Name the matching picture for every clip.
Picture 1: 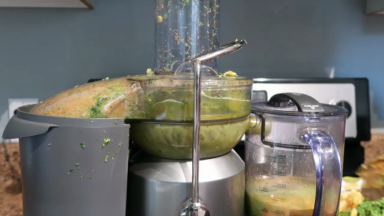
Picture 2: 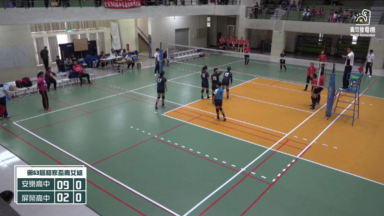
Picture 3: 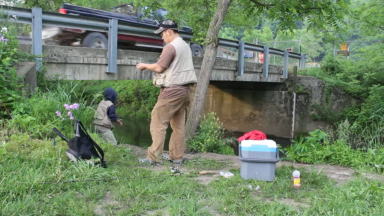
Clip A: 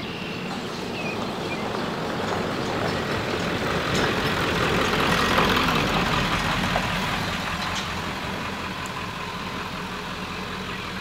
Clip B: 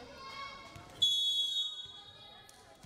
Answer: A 3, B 2